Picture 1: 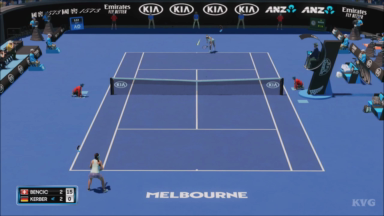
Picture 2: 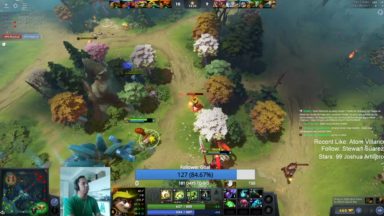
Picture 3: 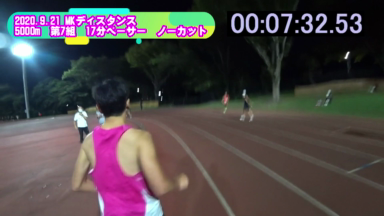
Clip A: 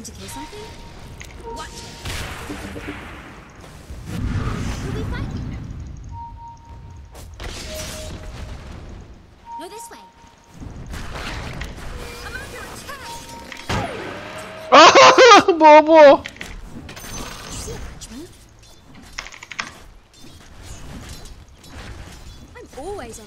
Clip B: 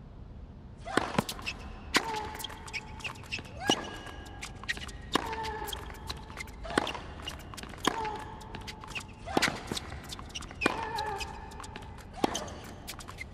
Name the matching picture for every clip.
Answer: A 2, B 1